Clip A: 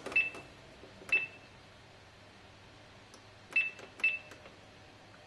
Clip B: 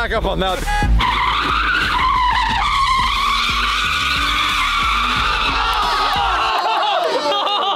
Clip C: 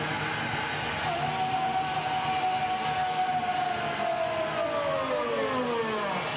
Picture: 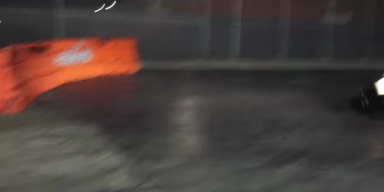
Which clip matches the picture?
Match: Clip B